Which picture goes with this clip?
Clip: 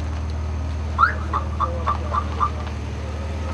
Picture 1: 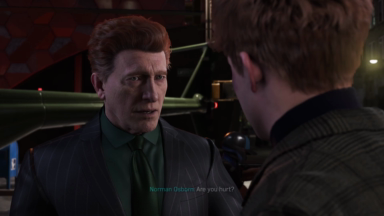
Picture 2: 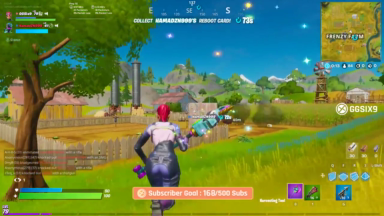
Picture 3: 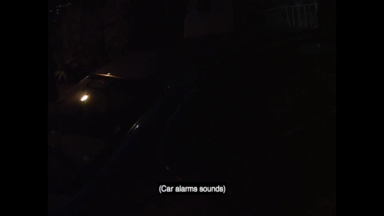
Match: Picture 3